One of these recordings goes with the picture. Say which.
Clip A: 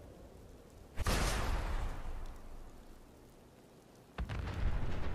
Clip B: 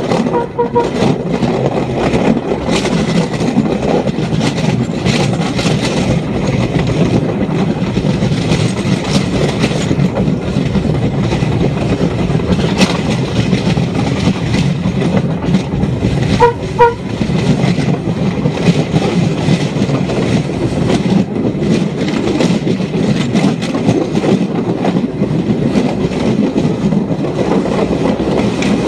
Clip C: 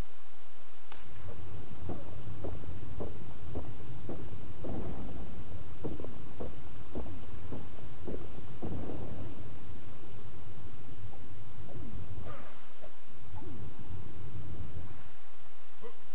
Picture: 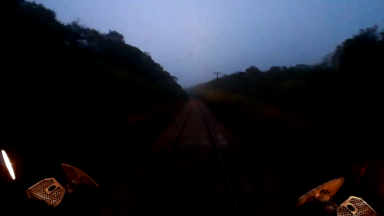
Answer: B